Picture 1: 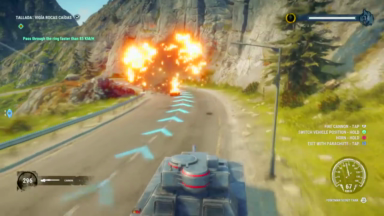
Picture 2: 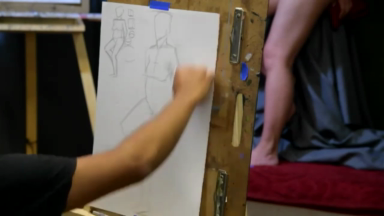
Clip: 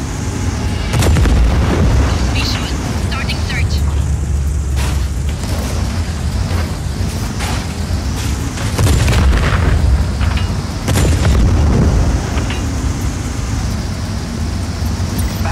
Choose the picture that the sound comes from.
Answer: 1